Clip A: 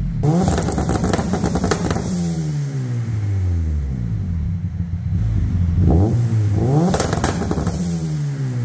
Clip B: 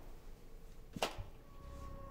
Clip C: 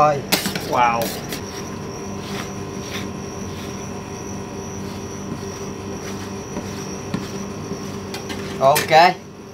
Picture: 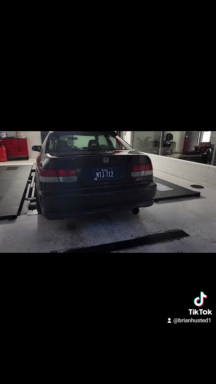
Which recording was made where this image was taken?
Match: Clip A